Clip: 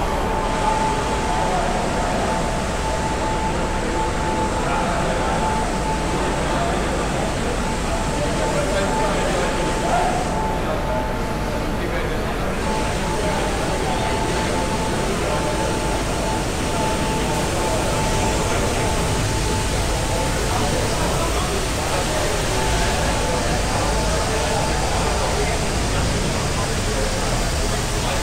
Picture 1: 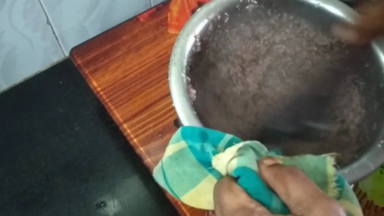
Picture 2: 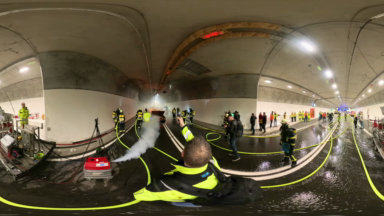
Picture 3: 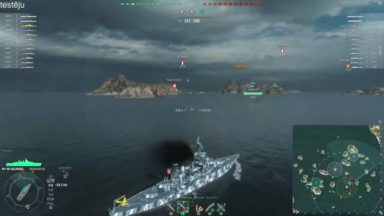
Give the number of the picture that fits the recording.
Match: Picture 2